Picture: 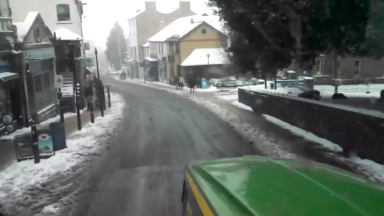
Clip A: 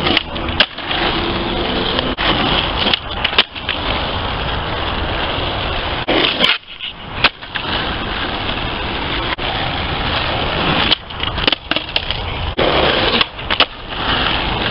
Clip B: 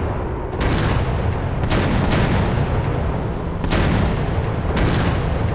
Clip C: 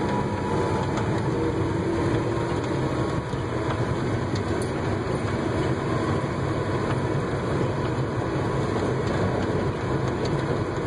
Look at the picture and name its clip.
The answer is C